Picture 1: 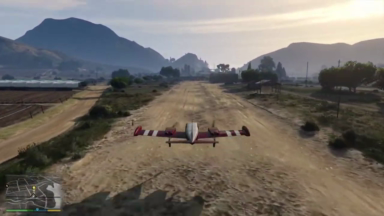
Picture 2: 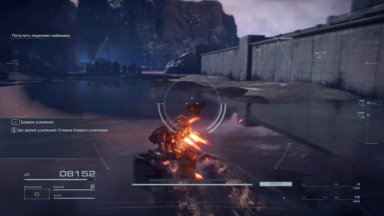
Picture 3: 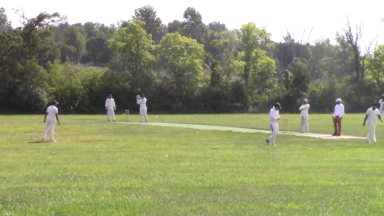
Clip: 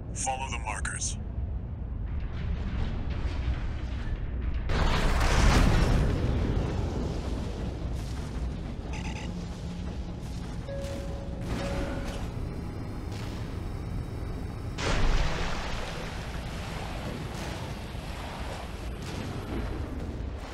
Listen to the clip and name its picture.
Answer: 2